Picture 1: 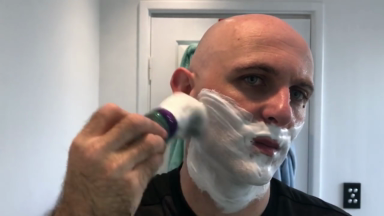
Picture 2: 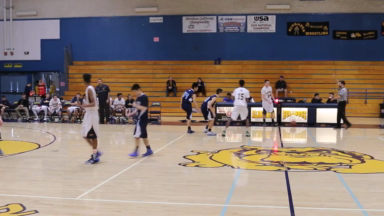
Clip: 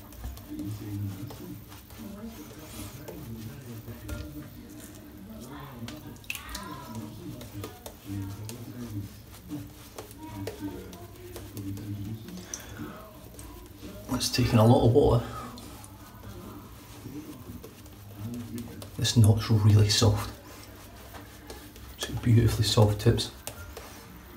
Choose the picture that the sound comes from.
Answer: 1